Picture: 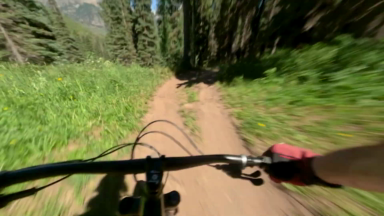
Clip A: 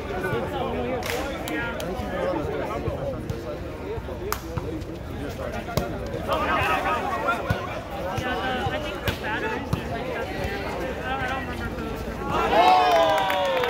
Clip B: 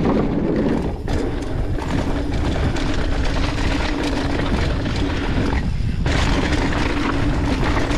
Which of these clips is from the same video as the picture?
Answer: B